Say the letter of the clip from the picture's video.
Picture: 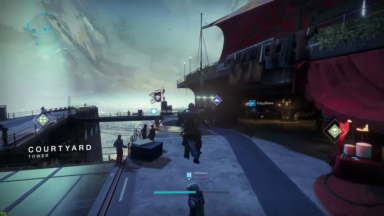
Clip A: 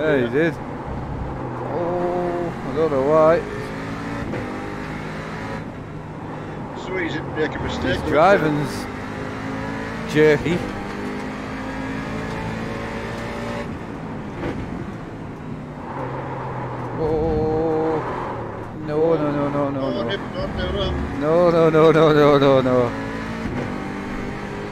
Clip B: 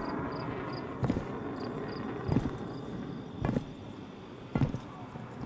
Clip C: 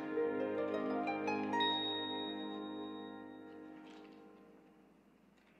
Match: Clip B